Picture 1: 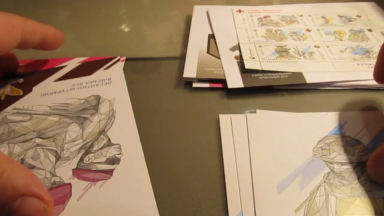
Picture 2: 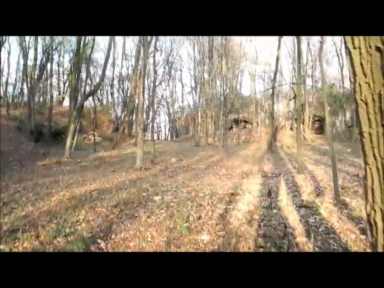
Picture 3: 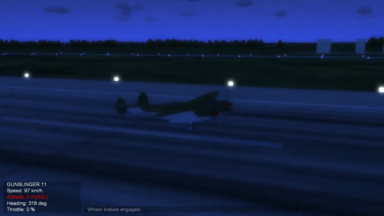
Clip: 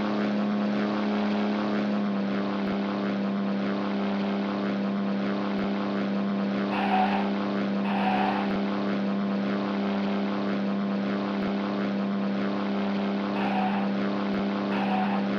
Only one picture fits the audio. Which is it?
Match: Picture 3